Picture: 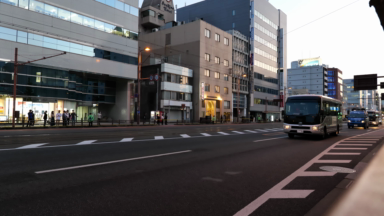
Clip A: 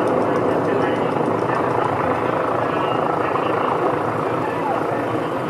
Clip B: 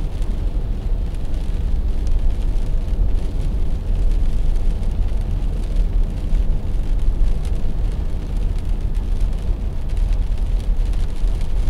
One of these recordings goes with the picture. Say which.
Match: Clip A